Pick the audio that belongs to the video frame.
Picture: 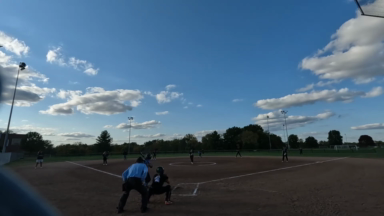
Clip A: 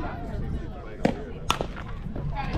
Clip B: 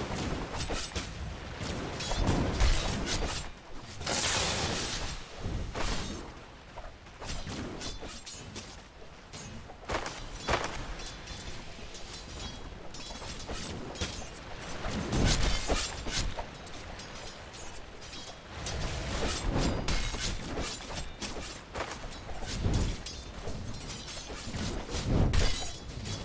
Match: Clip A